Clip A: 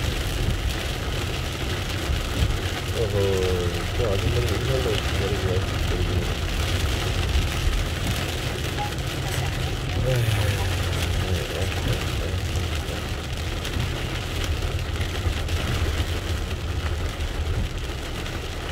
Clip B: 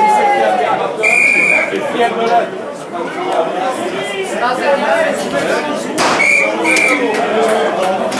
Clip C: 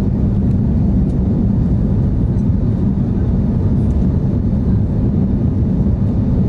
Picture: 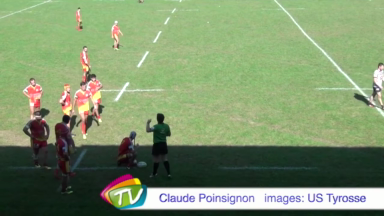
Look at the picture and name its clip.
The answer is B